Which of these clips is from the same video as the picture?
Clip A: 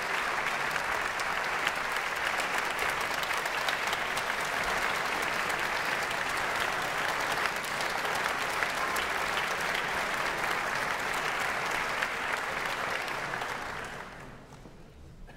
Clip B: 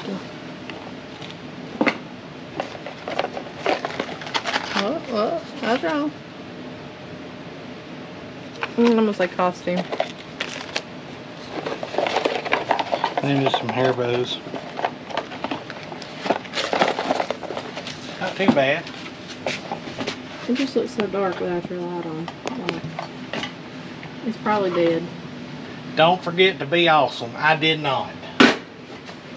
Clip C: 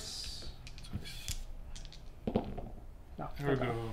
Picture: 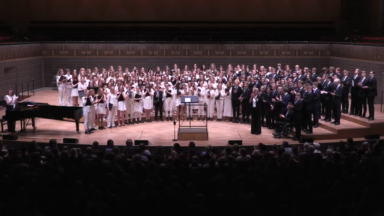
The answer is A